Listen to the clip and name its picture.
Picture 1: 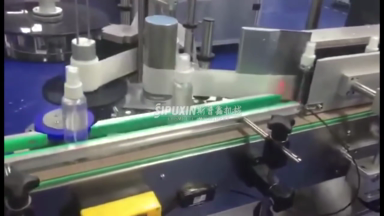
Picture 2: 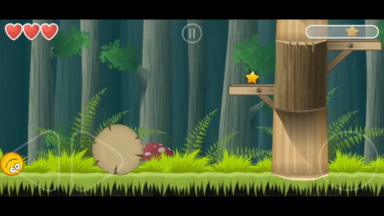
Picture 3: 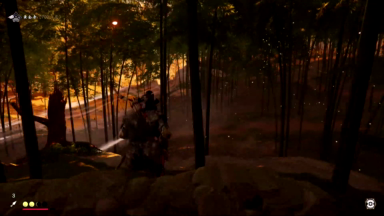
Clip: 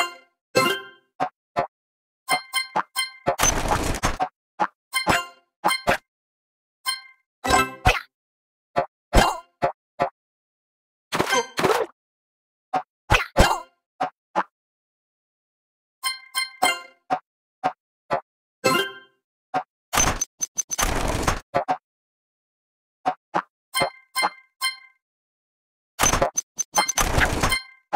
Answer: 2